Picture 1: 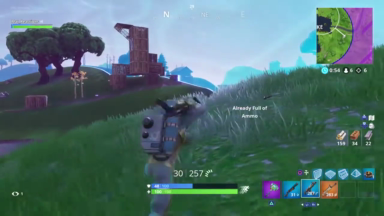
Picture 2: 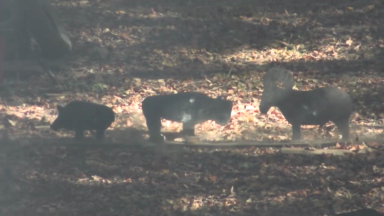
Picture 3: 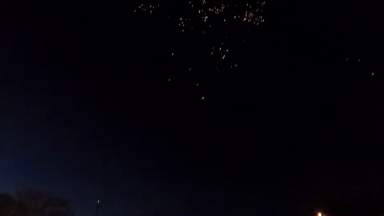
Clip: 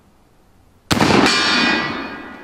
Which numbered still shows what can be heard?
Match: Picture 2